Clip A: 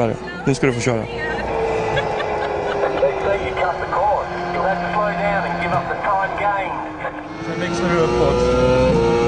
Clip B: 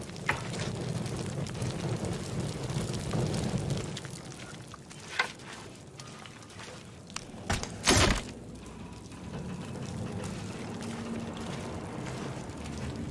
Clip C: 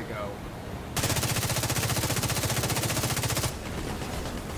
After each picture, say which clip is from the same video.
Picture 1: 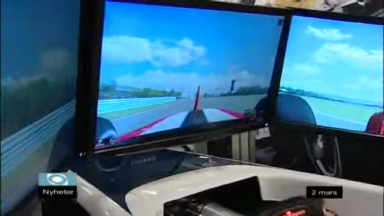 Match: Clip A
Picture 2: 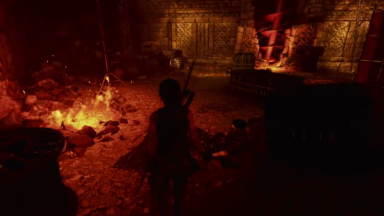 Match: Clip B